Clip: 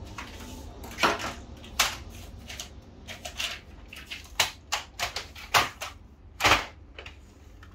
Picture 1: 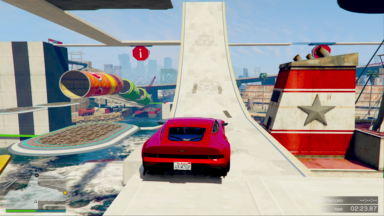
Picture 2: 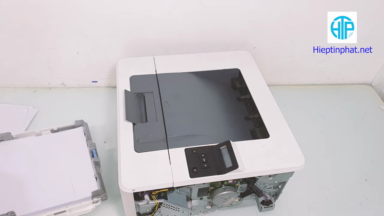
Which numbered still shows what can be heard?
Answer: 2